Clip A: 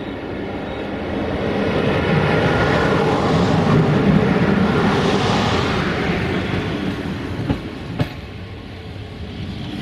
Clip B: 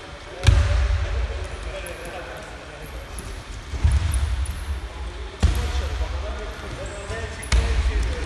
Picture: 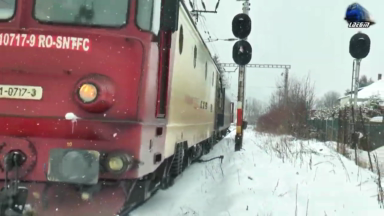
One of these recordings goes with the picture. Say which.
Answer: A